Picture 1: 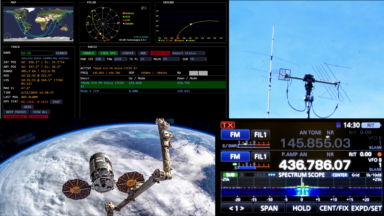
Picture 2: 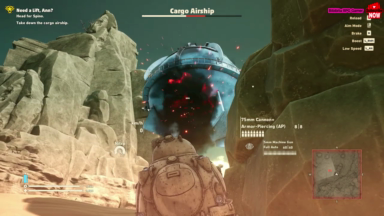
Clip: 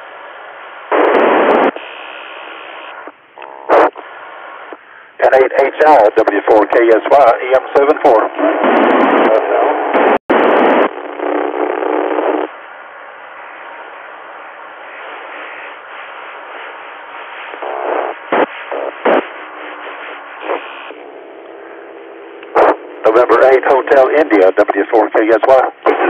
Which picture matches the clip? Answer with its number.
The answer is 1